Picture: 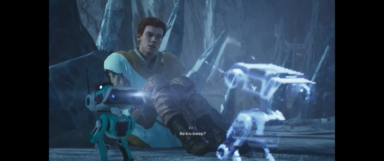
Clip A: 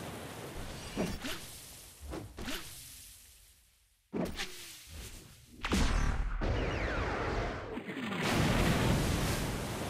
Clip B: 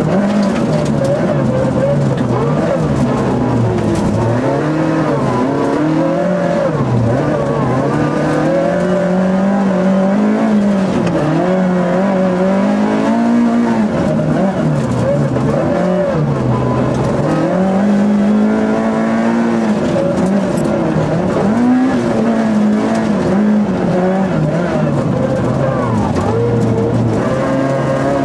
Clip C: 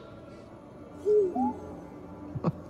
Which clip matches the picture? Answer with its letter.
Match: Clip C